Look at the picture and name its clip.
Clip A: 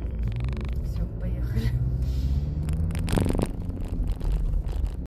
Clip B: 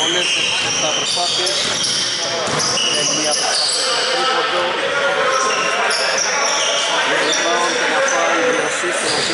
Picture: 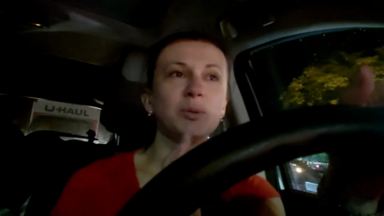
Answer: A